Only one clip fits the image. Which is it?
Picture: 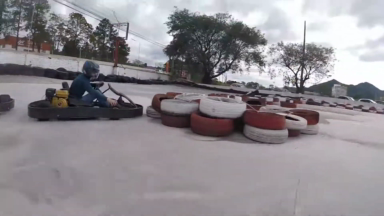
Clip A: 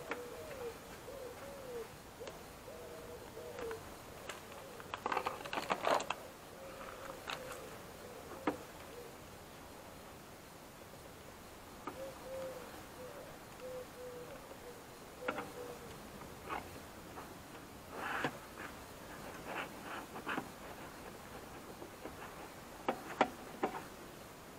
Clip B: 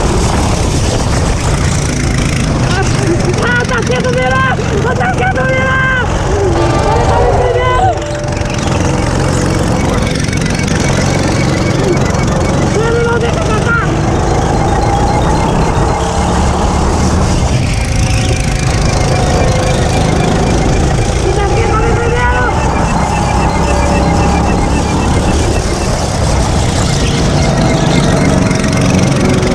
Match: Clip B